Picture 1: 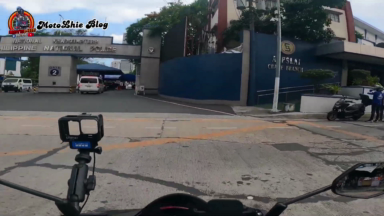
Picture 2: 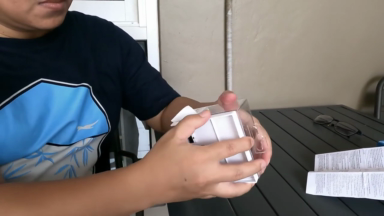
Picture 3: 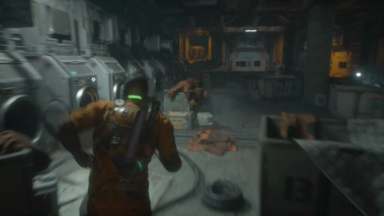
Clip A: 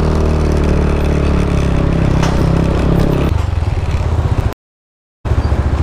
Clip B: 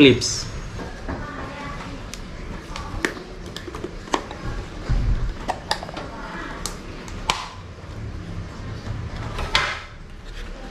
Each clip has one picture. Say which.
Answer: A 1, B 2